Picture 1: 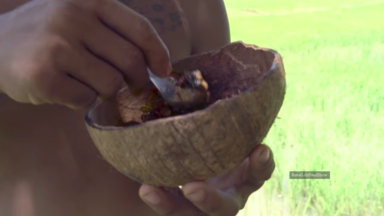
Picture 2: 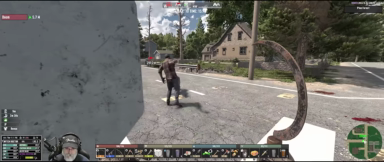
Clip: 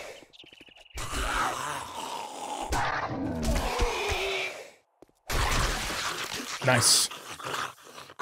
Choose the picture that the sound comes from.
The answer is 2